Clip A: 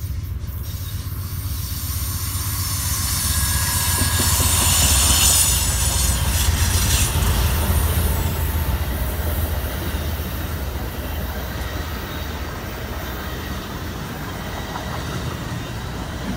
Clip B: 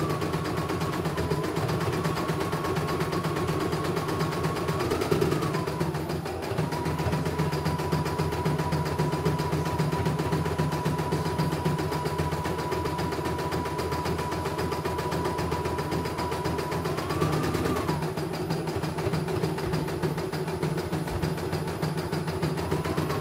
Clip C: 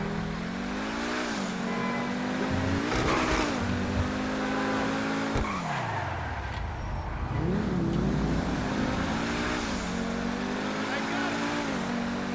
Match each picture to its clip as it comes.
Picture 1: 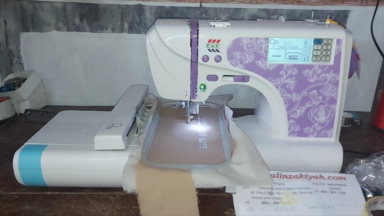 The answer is B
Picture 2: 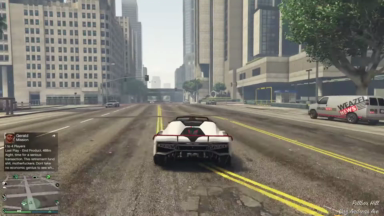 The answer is C